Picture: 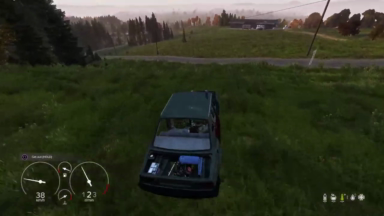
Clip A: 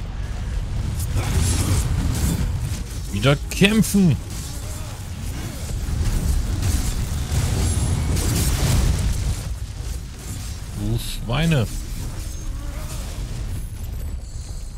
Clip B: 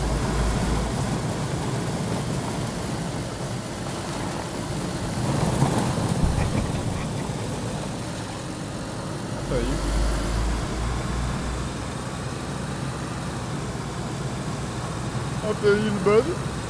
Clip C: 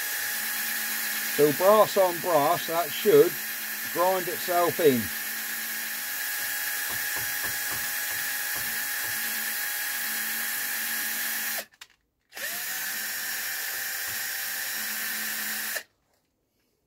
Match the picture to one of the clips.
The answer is B